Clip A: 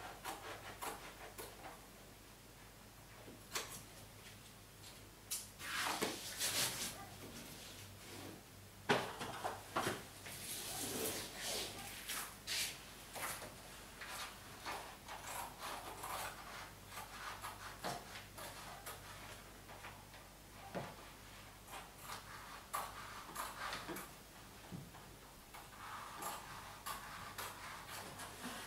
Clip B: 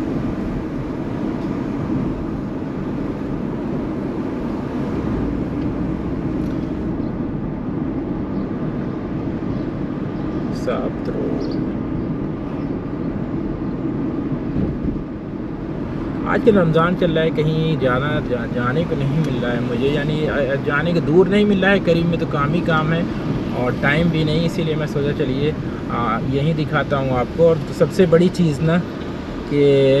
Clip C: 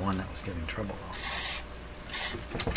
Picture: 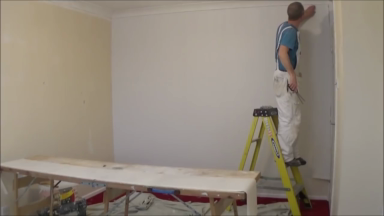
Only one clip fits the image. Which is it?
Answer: A